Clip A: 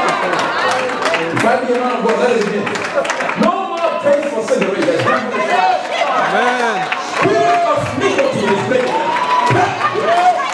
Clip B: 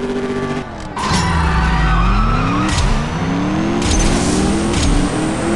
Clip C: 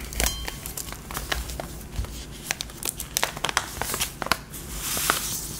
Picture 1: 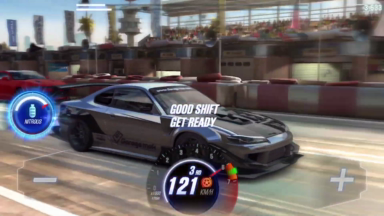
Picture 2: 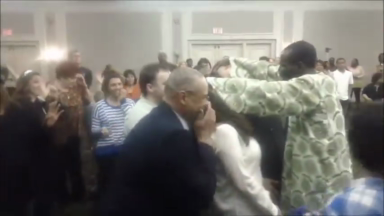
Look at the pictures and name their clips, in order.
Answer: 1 B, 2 A